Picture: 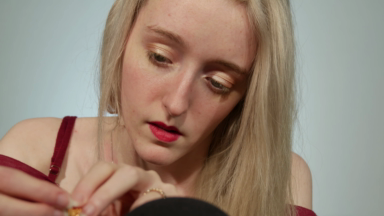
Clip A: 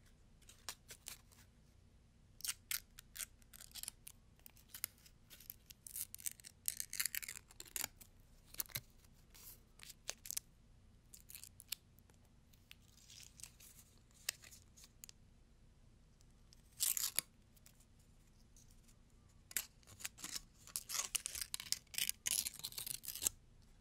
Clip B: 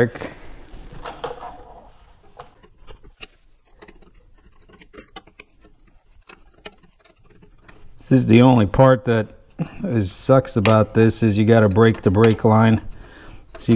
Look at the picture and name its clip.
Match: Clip A